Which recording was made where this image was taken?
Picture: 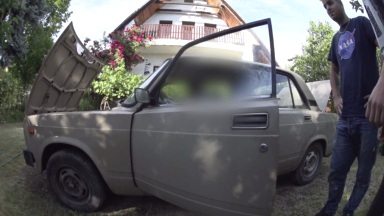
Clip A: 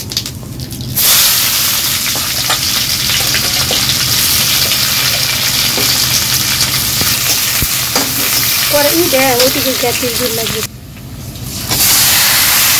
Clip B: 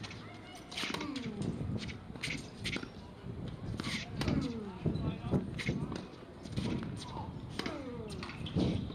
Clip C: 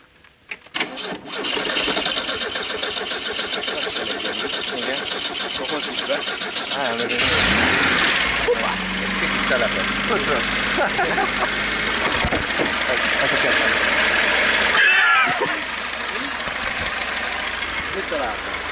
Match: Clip C